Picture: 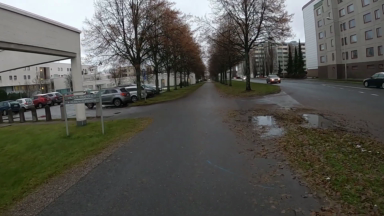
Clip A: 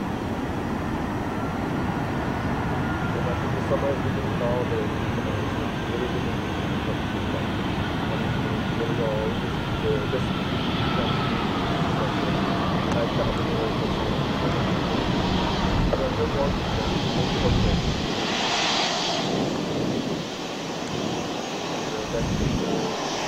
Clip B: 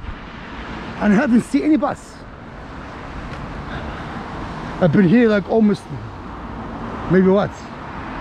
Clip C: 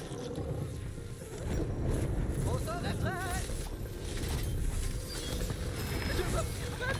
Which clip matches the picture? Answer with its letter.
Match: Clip B